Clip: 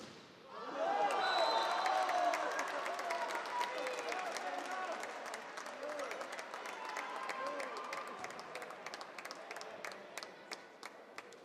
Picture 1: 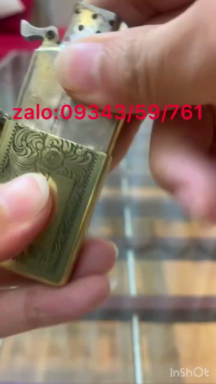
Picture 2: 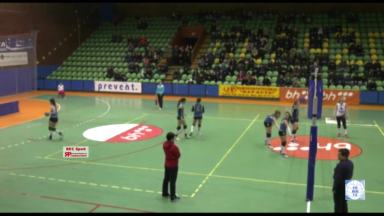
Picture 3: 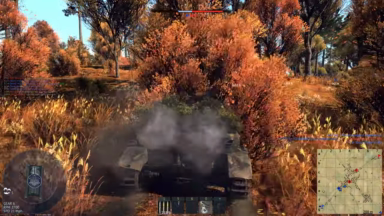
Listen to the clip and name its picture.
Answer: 2